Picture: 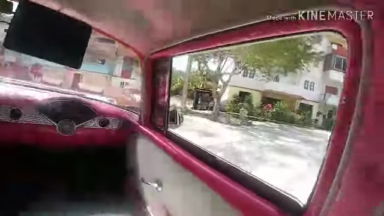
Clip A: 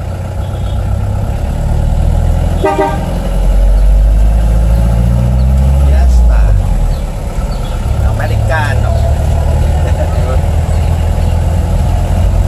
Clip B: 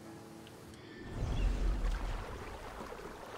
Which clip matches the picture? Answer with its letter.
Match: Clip A